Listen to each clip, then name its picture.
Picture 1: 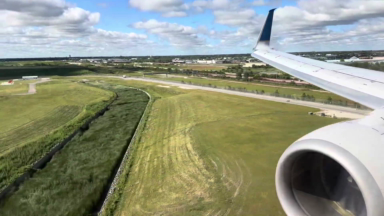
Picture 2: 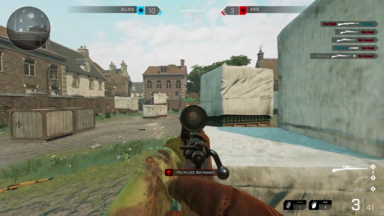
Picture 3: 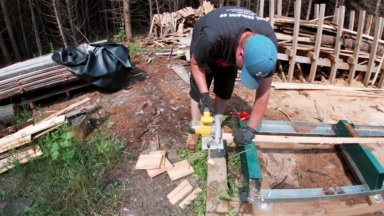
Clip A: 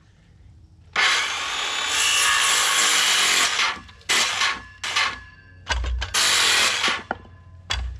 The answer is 3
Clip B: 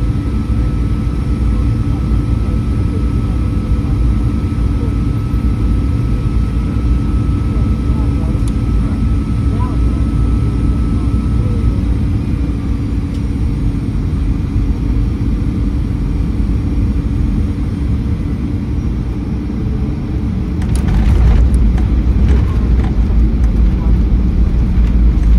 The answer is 1